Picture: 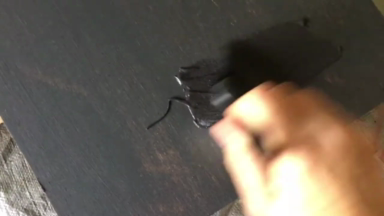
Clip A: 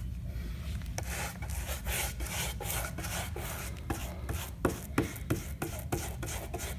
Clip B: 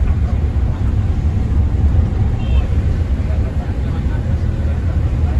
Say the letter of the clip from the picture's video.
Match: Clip A